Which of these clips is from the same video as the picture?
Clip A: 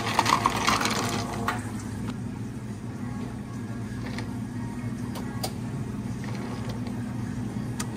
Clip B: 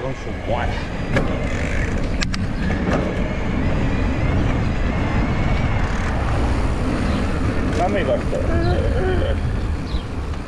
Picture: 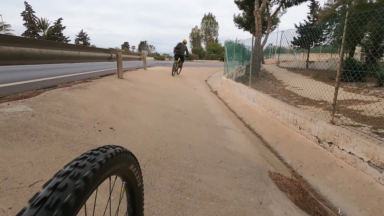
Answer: B